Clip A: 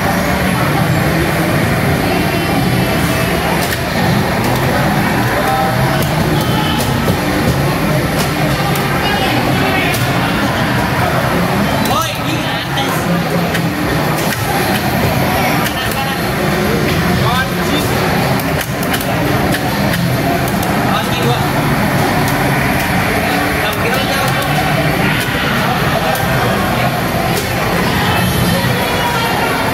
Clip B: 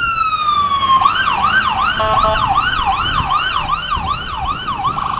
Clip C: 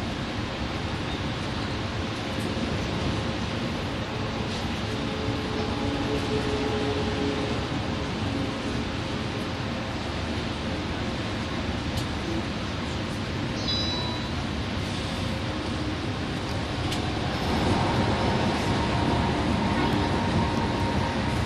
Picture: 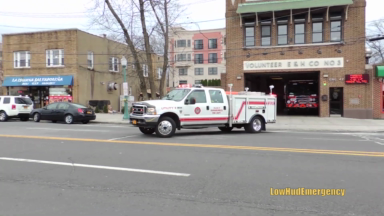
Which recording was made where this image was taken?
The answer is B